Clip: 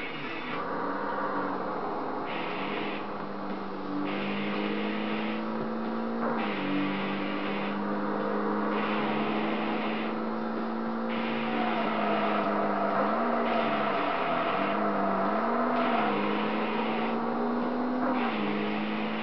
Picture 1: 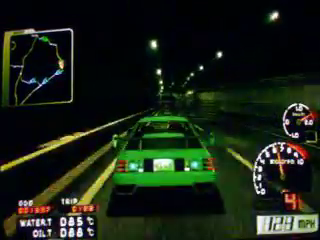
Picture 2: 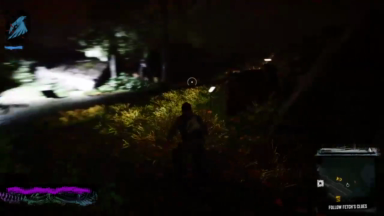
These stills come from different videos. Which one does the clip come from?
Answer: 1